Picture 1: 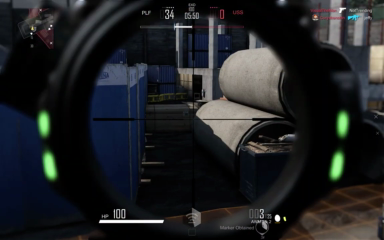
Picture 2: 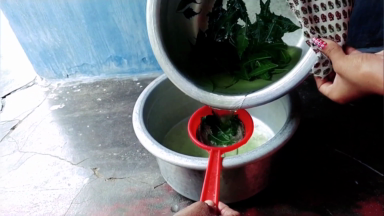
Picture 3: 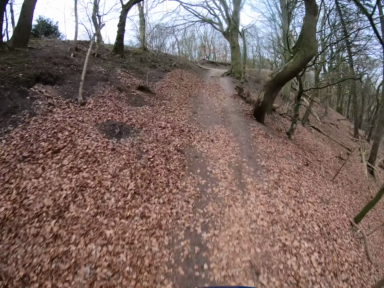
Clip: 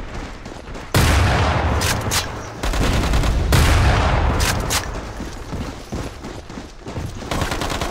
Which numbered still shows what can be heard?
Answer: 1